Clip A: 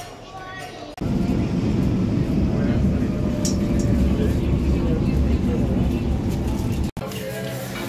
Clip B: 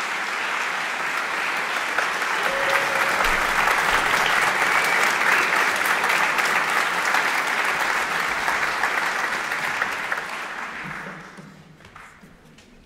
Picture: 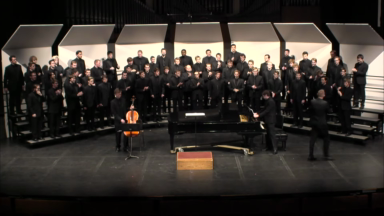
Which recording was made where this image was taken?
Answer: B